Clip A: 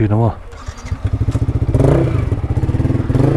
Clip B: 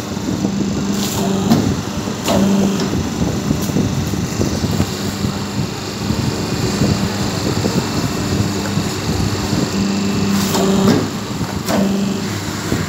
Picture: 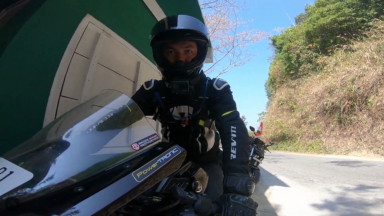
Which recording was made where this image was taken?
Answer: A